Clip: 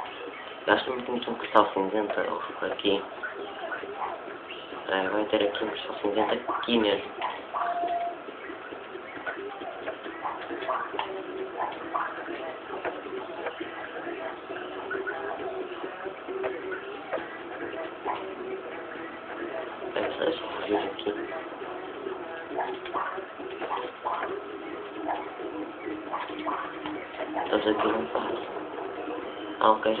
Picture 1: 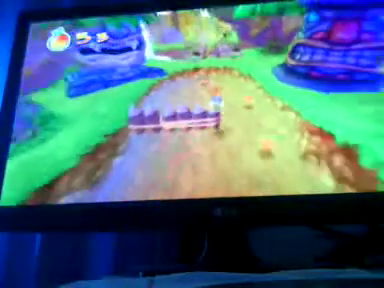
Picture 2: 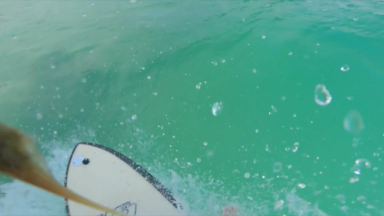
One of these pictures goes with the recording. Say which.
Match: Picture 1